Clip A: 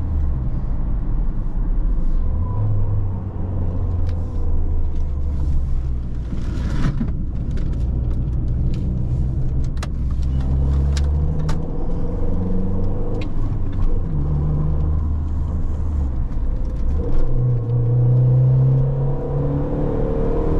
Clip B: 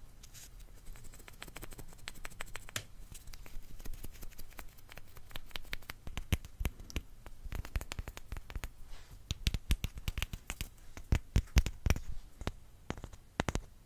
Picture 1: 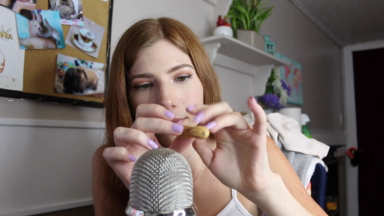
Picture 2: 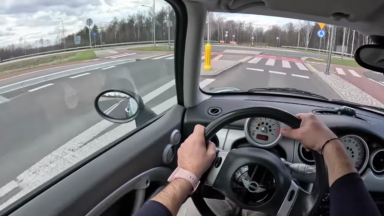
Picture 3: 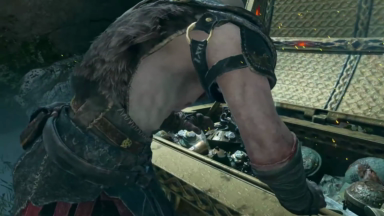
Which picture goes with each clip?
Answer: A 2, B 1